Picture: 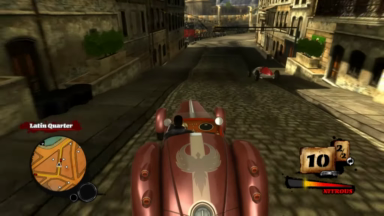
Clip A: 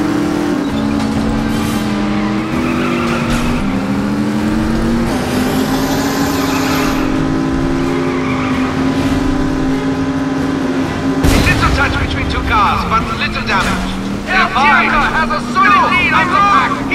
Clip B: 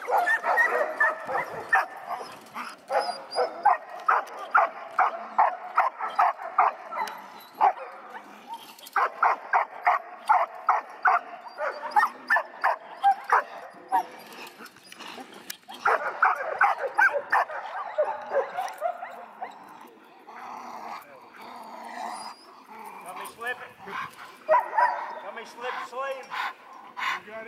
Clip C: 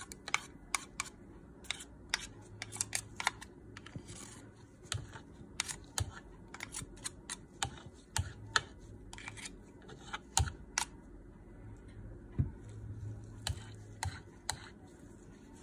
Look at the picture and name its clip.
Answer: A